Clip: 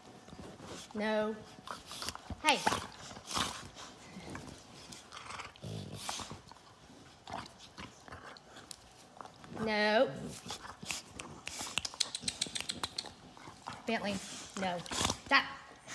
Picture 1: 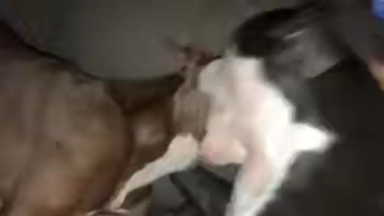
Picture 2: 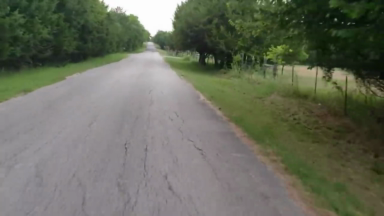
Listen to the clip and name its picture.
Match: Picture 1